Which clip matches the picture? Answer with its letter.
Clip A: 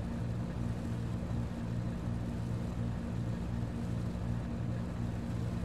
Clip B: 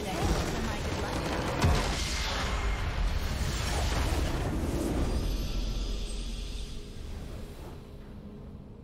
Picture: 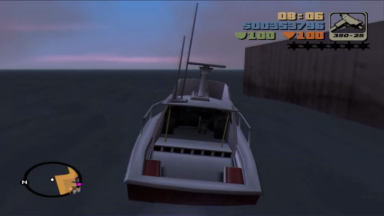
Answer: A